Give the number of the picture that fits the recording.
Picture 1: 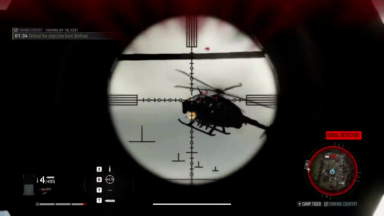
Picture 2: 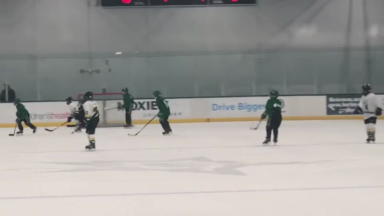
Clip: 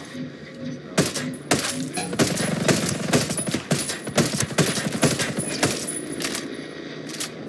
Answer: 1